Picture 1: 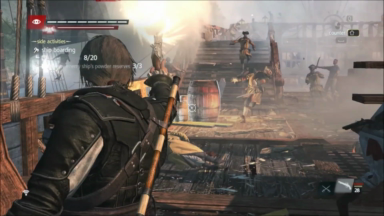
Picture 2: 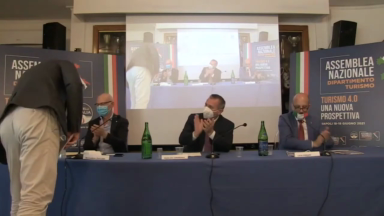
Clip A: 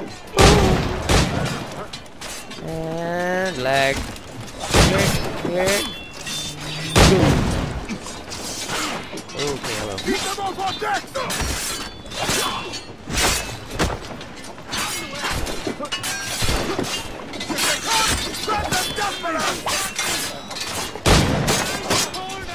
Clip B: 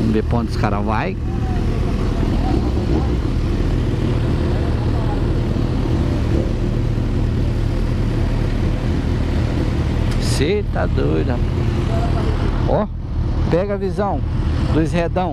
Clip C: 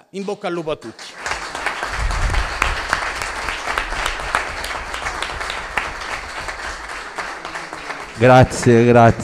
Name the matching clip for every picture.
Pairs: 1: A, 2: C